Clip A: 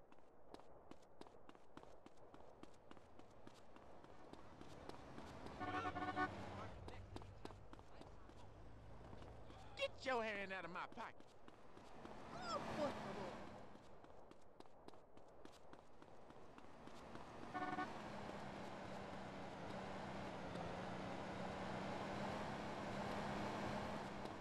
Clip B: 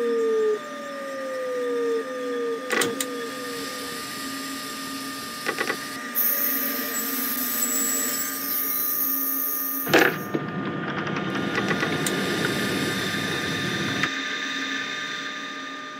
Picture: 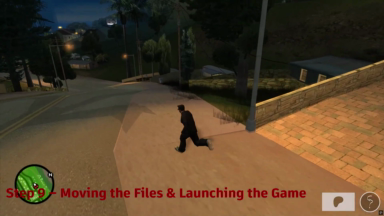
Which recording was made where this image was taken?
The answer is A